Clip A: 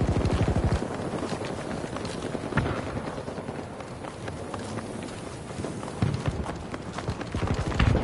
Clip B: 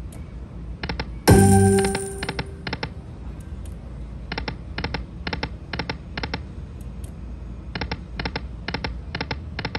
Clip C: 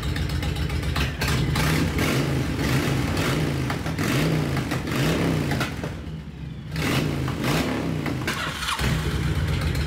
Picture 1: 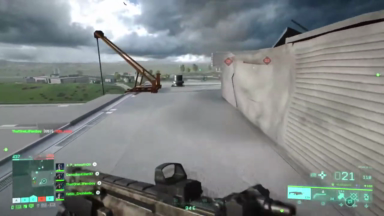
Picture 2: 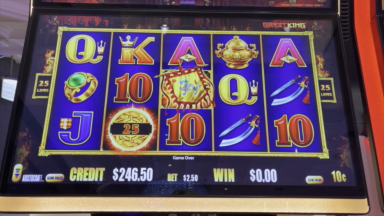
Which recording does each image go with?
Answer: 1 A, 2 B